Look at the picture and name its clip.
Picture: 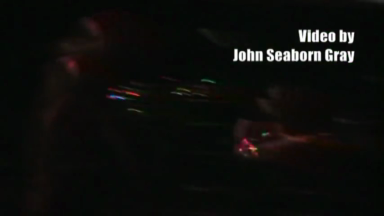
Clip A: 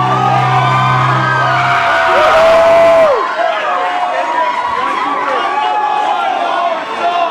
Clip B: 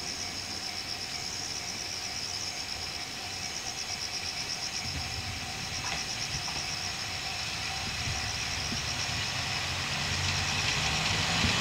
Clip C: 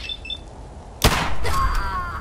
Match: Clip A